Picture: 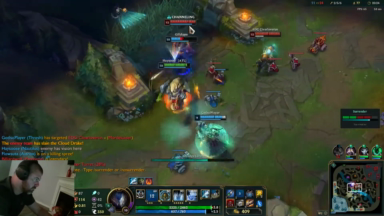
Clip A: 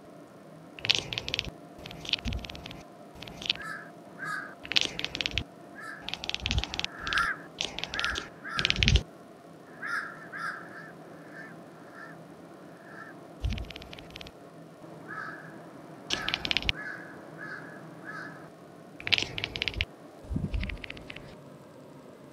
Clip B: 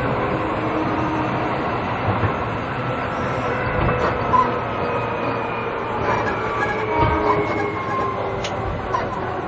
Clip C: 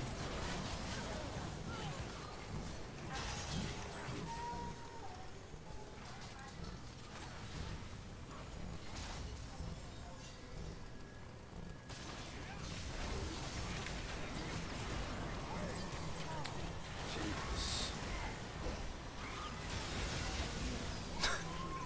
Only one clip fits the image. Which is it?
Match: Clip C